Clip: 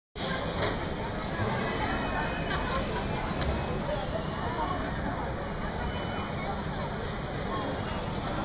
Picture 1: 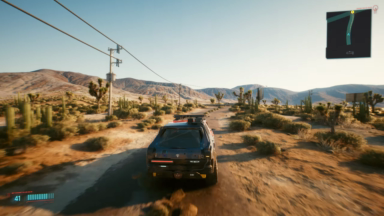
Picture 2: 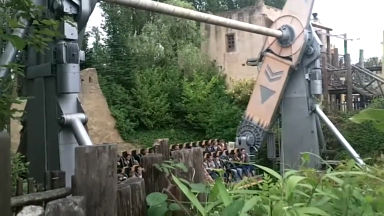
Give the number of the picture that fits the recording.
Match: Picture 2